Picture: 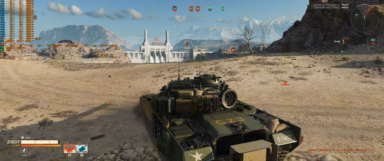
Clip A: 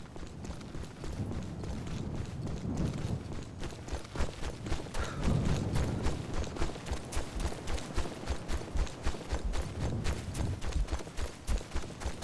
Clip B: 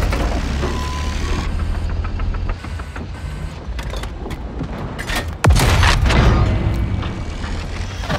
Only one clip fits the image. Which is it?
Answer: B